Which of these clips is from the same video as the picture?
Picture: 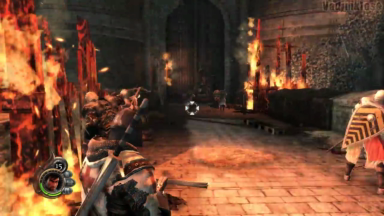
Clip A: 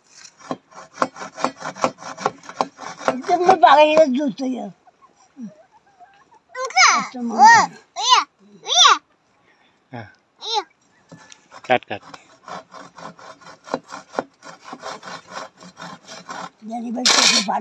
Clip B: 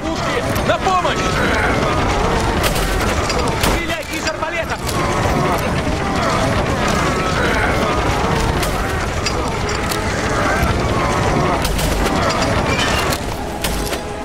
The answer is B